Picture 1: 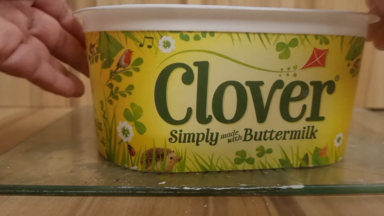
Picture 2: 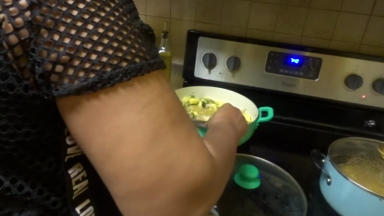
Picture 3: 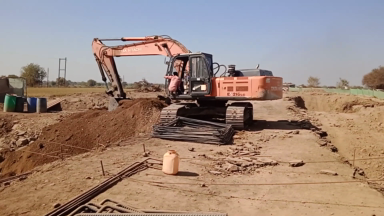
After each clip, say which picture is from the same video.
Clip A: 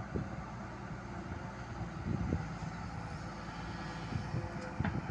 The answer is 3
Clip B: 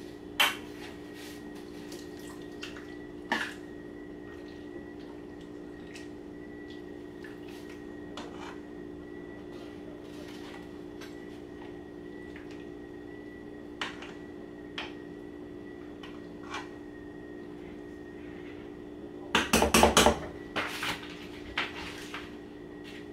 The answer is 2